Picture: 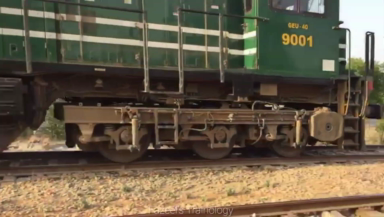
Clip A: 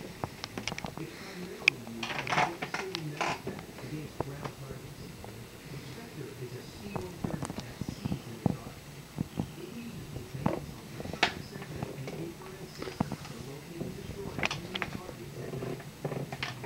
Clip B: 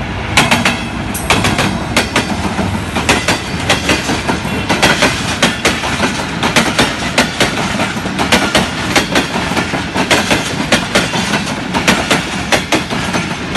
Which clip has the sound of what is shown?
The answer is B